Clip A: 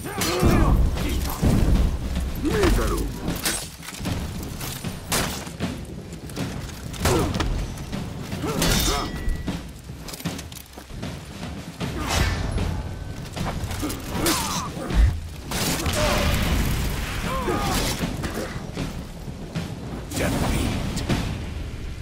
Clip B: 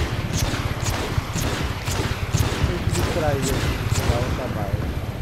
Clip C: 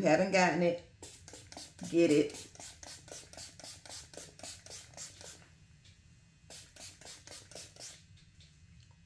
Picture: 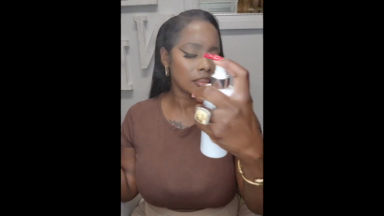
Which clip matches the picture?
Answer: C